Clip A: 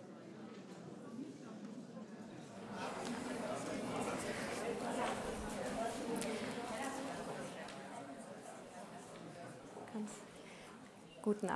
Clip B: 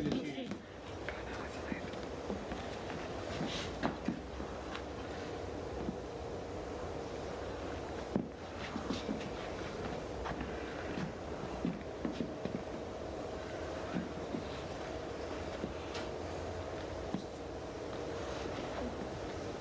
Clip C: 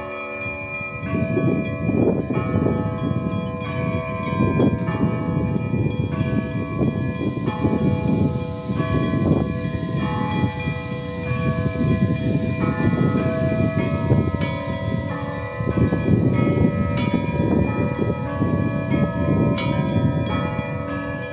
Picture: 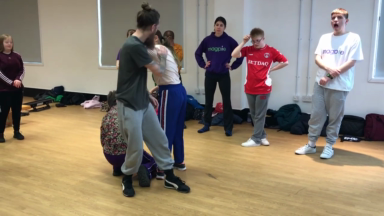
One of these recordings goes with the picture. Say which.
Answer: B